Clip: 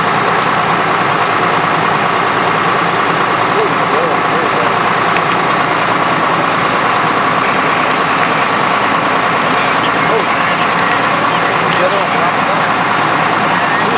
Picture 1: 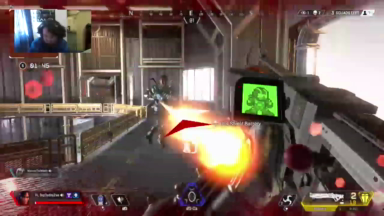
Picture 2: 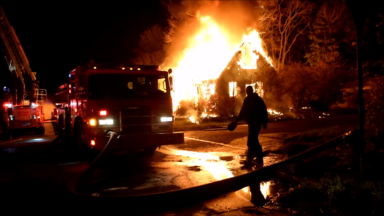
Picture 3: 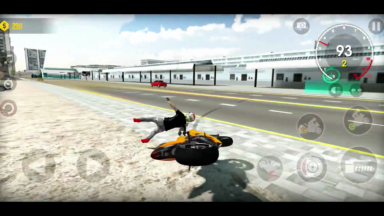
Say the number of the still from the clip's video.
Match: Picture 2